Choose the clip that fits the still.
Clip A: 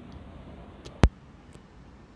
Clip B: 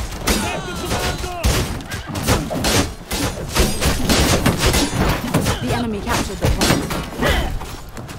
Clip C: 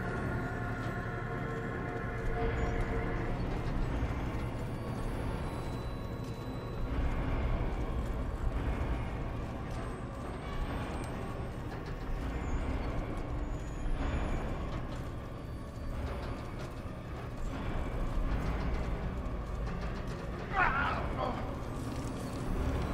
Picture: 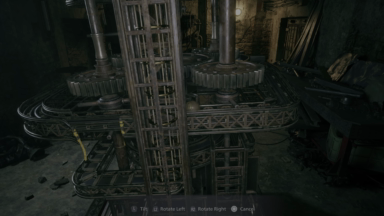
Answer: C